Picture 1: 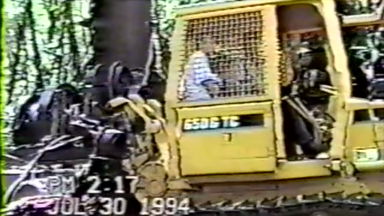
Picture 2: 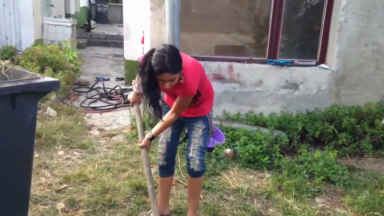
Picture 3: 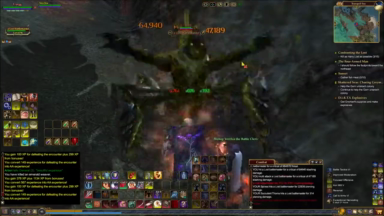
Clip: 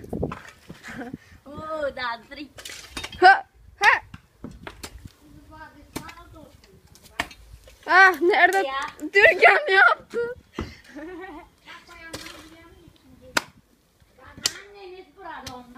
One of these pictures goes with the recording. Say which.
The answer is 2